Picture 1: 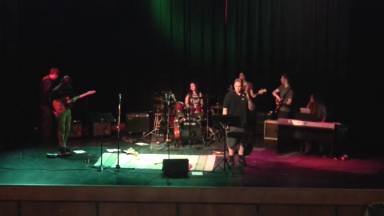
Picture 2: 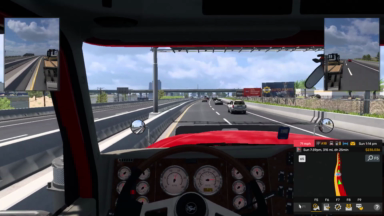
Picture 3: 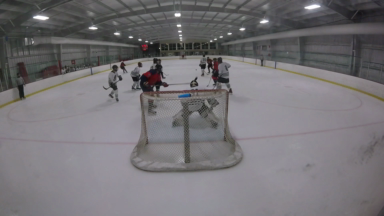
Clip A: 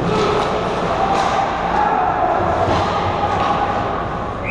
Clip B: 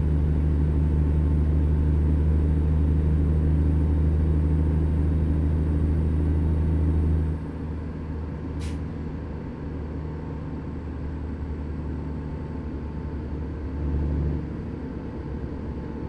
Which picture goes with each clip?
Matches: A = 3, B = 2